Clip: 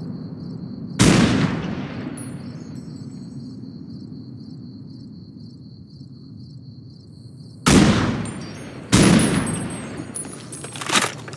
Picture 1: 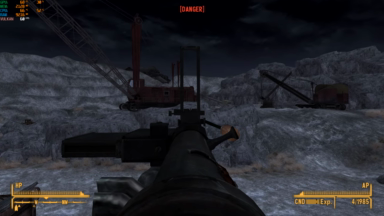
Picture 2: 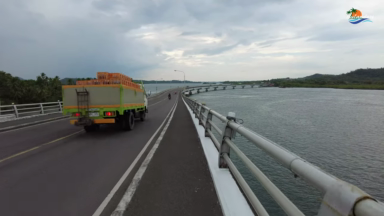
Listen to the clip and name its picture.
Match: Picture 1